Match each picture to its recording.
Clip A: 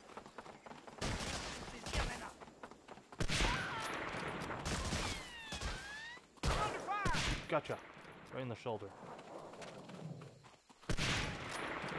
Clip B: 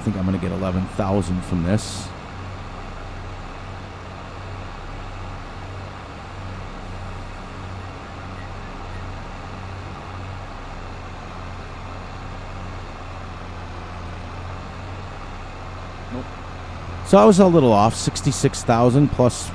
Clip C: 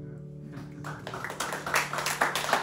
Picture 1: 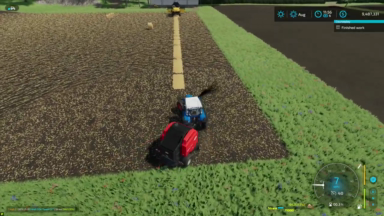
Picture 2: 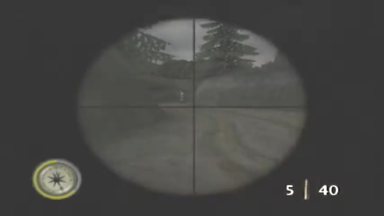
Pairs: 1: B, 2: A